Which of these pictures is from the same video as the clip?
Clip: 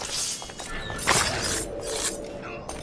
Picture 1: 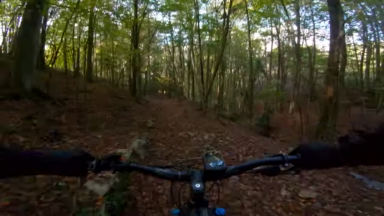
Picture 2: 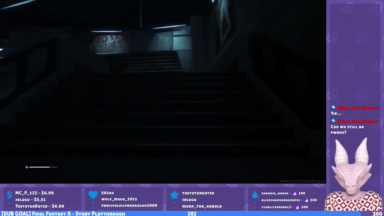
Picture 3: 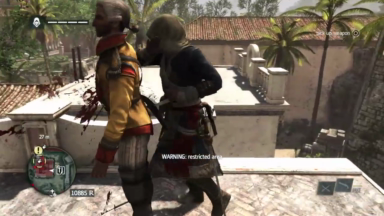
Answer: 3